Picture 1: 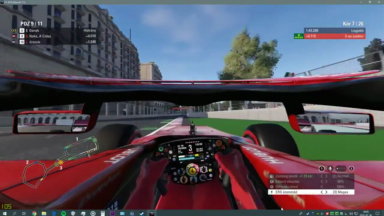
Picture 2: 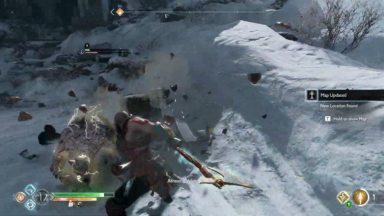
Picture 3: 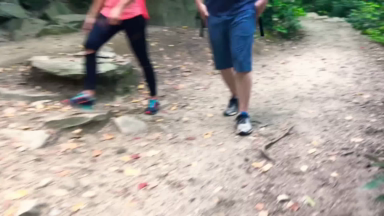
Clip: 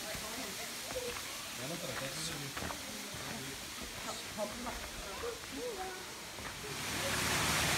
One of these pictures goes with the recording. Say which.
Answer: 3